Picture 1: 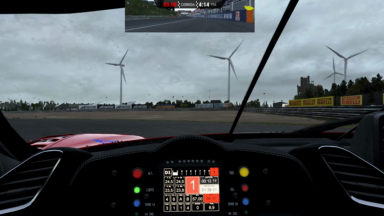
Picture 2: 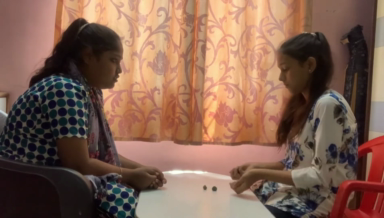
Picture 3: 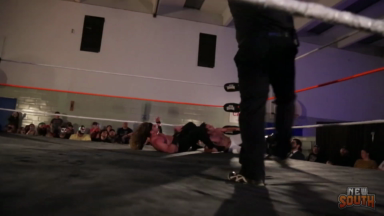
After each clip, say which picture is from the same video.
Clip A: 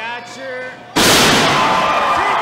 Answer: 3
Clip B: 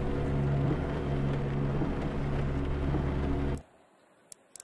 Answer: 1